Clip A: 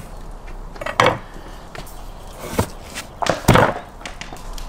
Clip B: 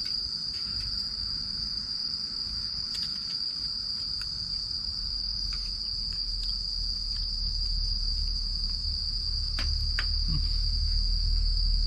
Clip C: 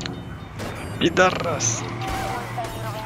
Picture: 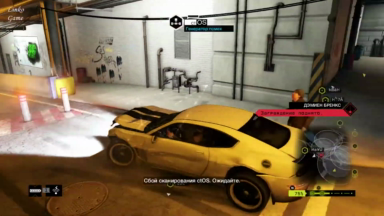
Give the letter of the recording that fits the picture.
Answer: C